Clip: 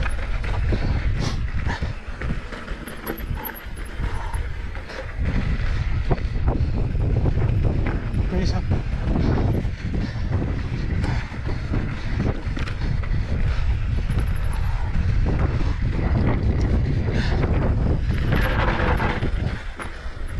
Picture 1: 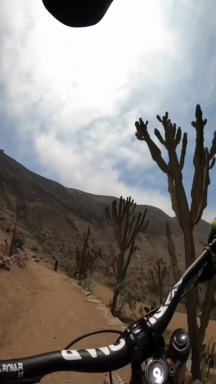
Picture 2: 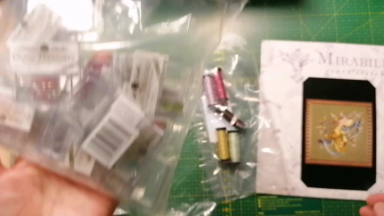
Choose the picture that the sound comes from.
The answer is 1